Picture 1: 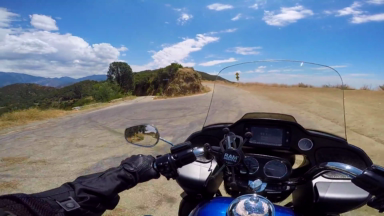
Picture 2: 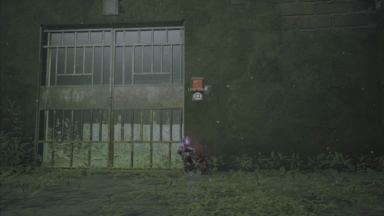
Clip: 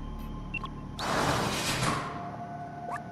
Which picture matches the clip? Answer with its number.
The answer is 2